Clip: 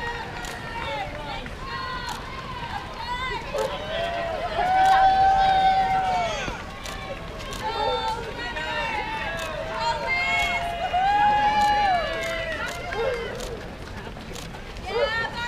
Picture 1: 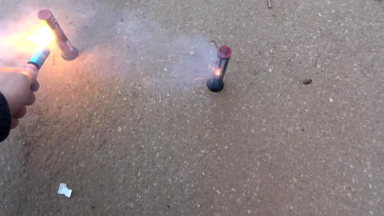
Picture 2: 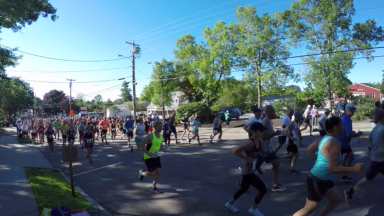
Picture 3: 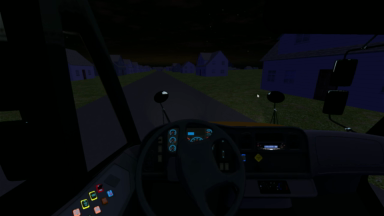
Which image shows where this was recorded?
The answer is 2